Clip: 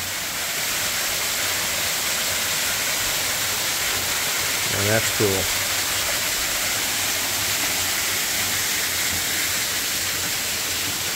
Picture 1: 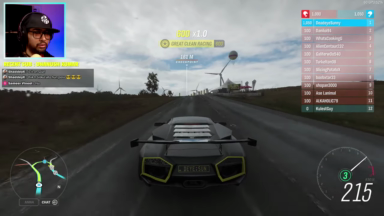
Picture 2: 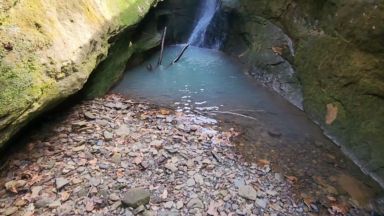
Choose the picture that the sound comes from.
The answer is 2